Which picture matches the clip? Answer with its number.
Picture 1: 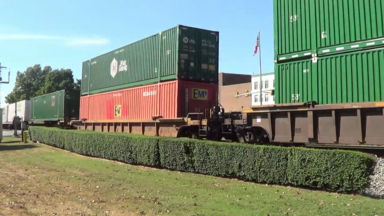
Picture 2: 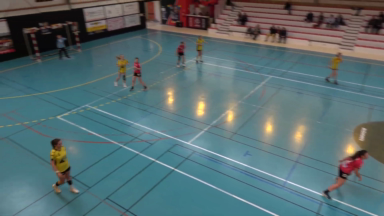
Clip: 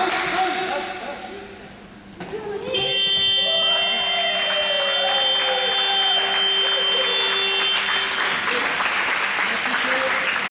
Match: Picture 2